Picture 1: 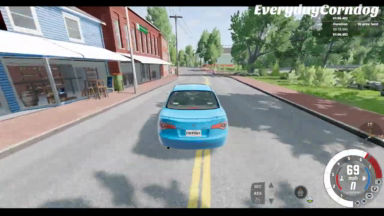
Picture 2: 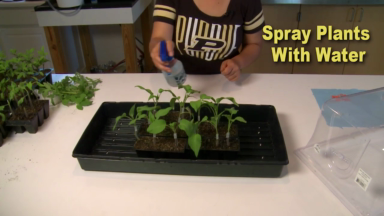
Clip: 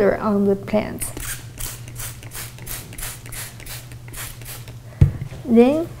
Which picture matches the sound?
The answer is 2